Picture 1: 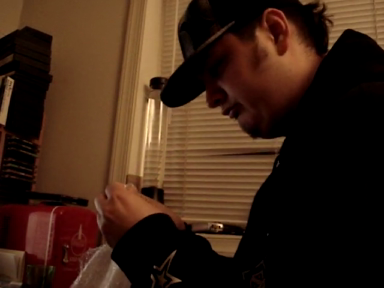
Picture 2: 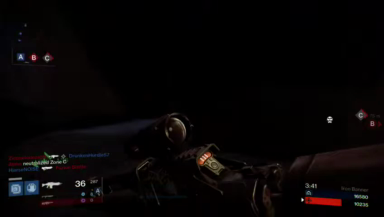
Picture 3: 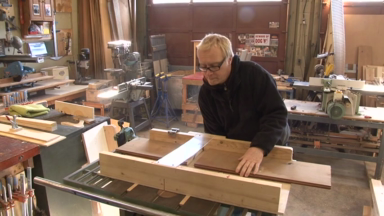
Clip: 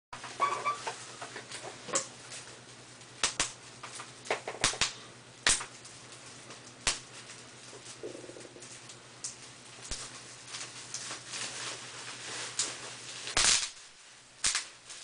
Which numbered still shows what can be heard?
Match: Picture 1